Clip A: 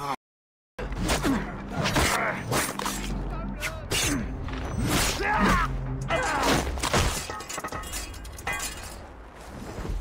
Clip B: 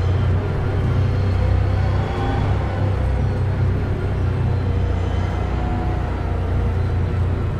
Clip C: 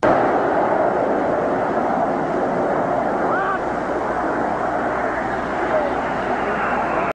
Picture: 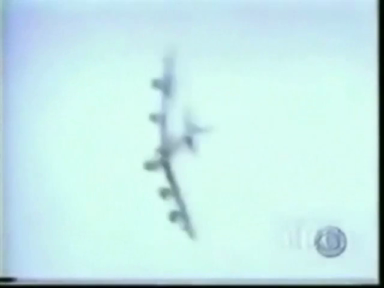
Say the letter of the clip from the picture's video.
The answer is C